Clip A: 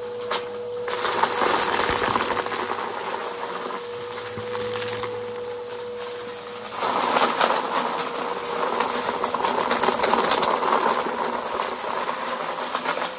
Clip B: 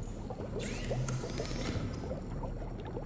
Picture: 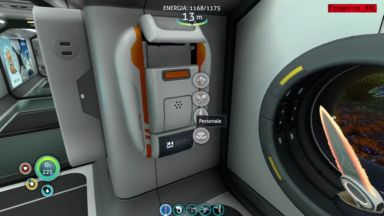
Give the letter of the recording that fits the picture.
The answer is B